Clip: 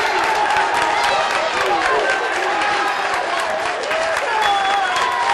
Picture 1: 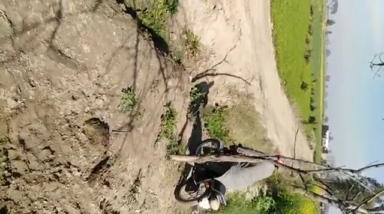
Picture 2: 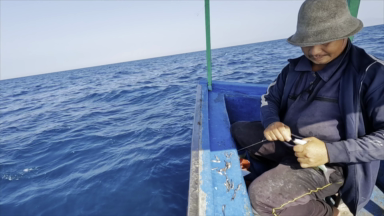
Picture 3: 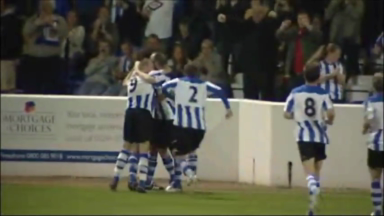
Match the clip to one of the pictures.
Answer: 3